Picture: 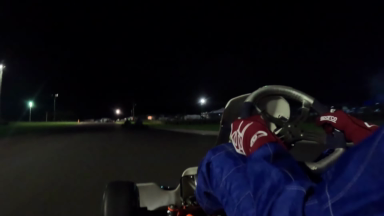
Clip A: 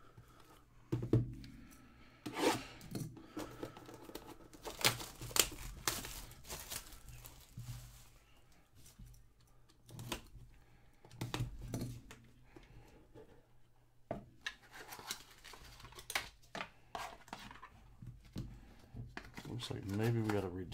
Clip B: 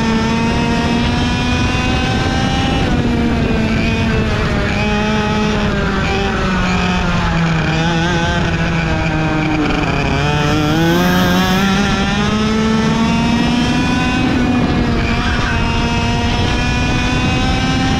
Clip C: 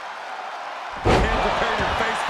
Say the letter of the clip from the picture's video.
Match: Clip B